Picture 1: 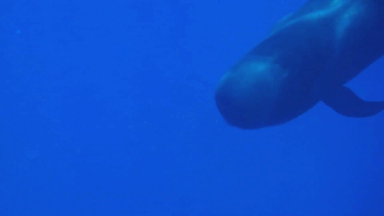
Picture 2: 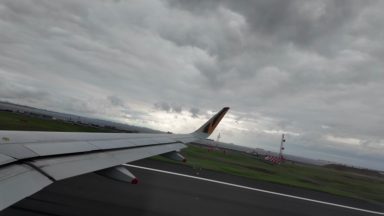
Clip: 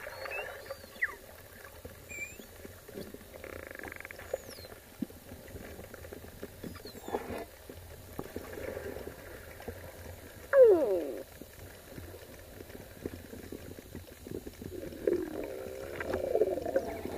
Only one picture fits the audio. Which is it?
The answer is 1